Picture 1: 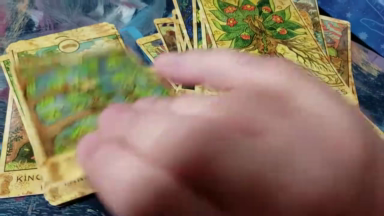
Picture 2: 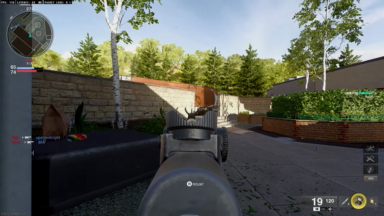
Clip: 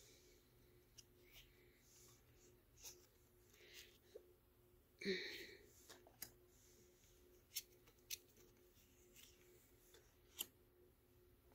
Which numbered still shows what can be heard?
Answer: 1